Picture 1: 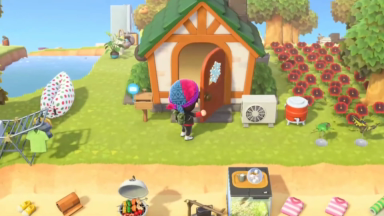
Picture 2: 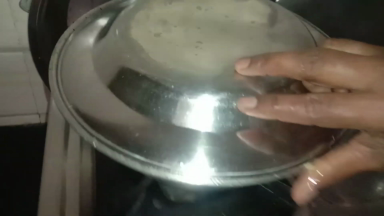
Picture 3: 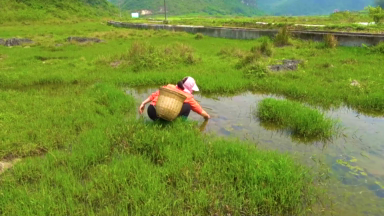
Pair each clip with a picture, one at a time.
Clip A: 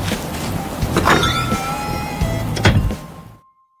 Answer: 1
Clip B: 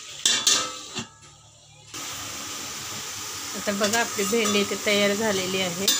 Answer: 2